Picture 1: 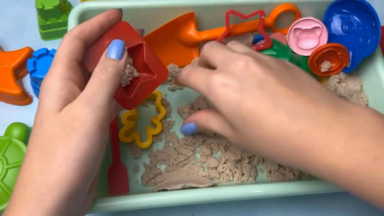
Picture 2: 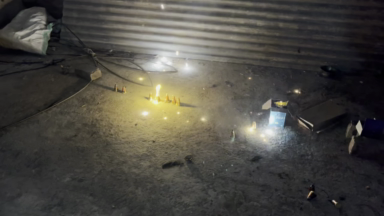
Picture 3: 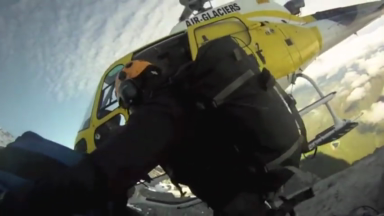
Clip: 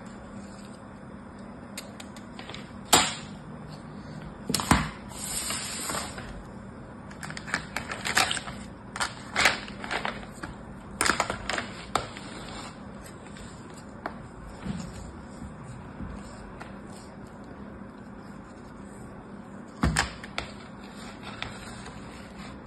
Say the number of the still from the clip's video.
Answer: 1